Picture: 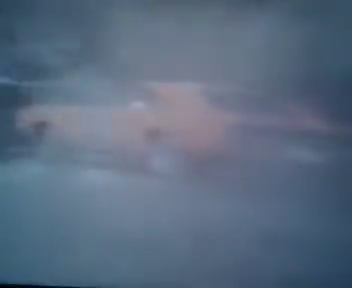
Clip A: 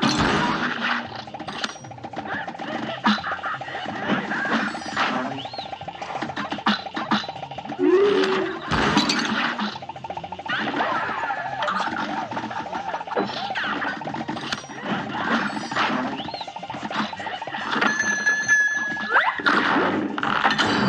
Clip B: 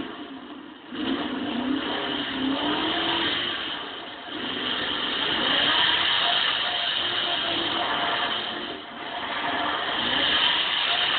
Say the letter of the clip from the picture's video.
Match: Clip B